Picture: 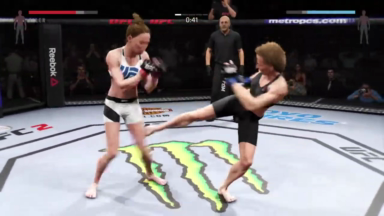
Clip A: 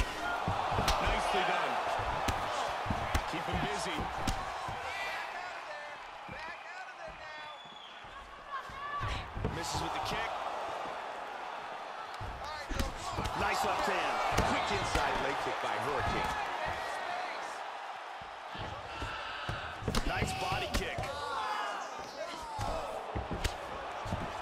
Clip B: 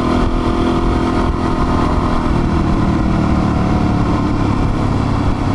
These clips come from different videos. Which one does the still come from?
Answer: A